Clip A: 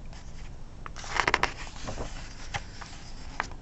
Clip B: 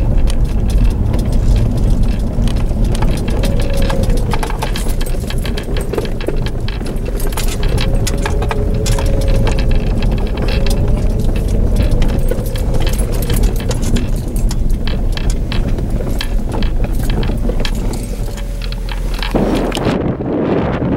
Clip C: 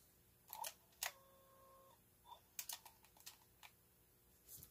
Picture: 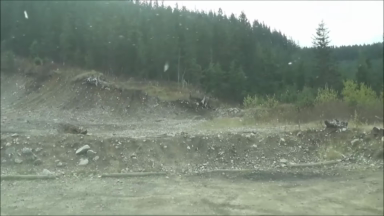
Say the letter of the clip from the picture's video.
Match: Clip B